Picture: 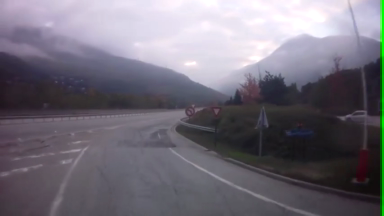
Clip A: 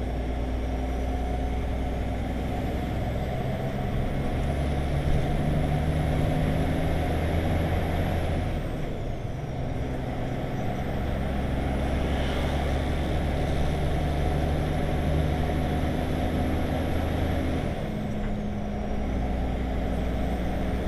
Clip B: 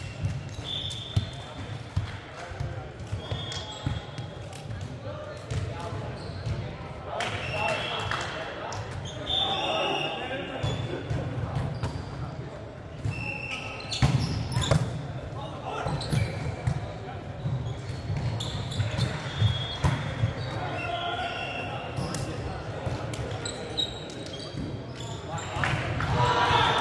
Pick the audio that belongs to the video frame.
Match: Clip A